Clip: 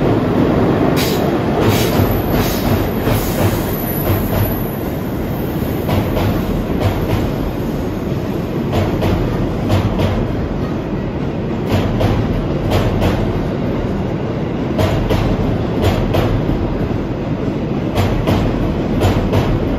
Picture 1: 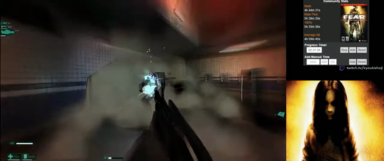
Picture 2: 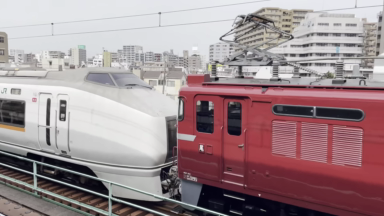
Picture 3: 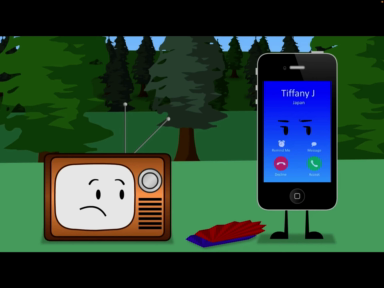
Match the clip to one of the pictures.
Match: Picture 2